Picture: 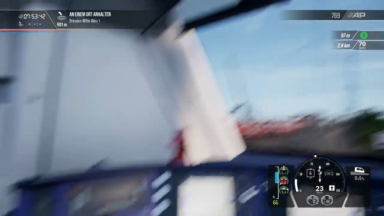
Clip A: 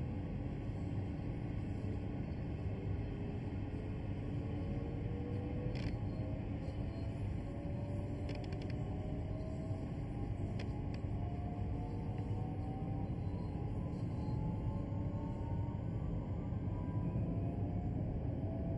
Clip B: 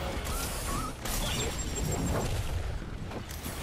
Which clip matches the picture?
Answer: A